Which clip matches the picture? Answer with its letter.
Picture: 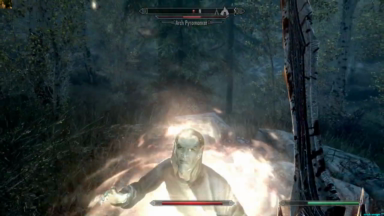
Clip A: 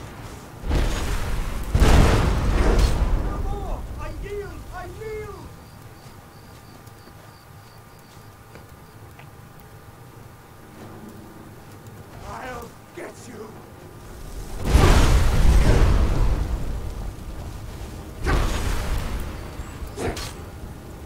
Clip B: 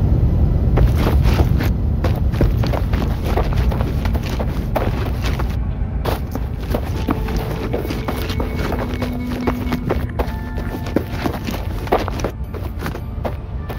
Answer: A